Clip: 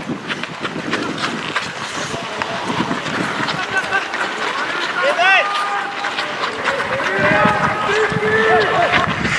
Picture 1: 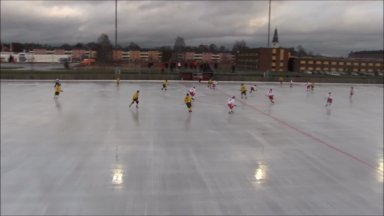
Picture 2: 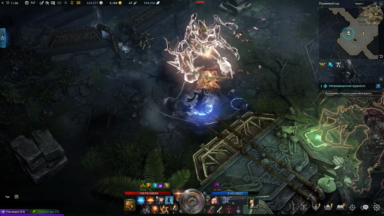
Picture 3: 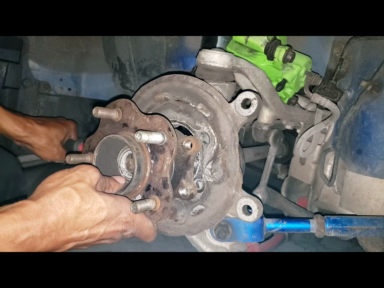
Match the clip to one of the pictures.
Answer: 1